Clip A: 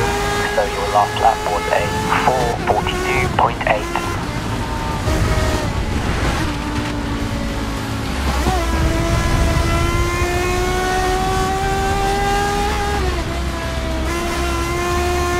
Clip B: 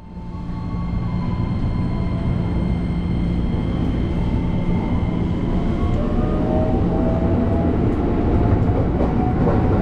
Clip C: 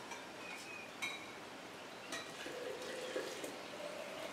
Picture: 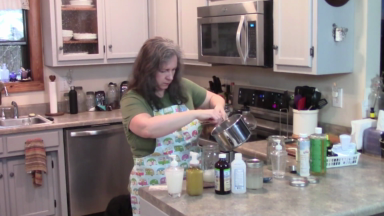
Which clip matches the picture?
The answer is C